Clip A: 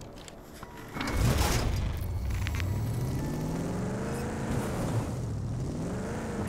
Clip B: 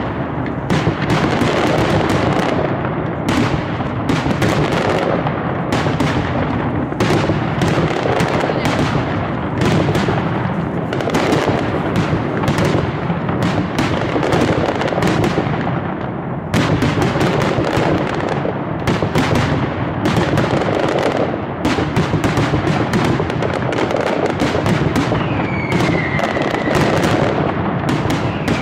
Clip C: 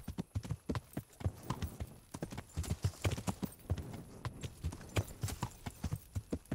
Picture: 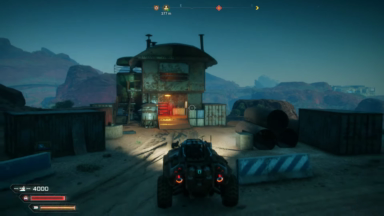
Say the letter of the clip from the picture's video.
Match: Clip A